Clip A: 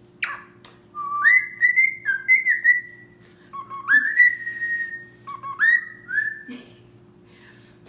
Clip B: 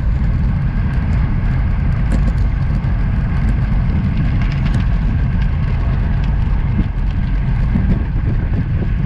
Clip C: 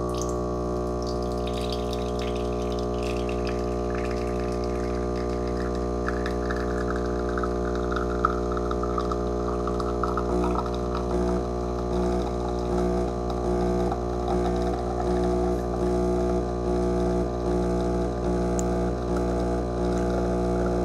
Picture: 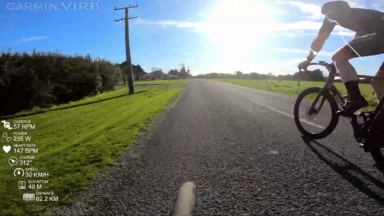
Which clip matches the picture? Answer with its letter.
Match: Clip B